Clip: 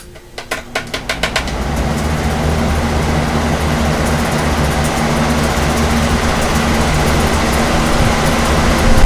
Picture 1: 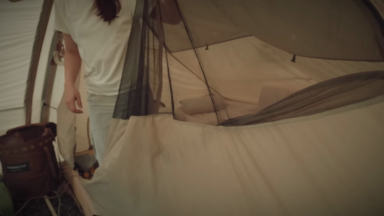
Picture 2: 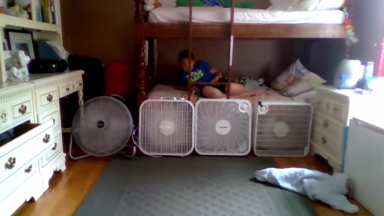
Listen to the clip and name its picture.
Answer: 2